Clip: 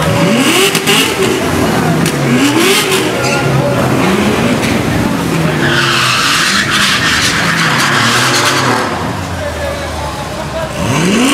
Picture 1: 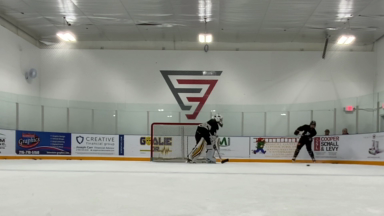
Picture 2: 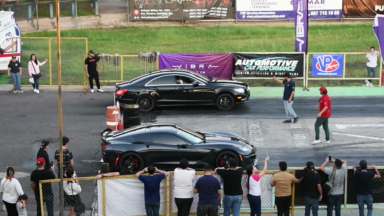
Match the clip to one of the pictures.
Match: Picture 2